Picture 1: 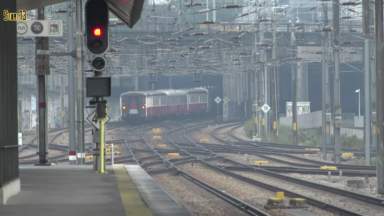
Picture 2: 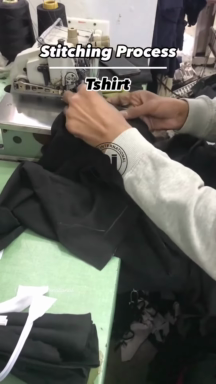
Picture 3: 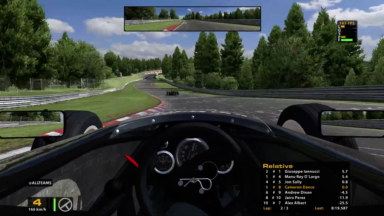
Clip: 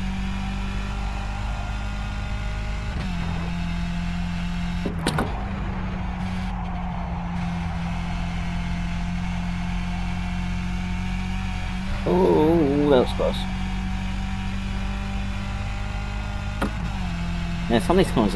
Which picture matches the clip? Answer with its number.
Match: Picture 3